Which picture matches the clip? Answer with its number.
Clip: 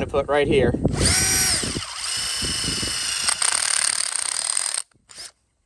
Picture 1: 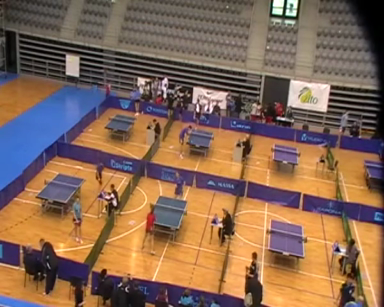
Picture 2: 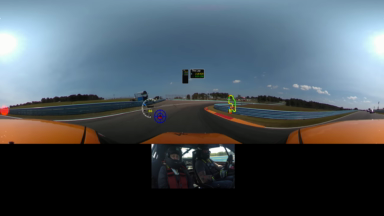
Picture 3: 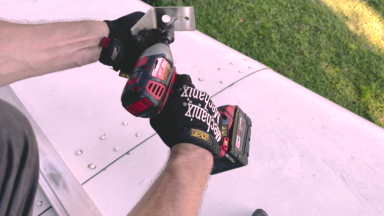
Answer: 3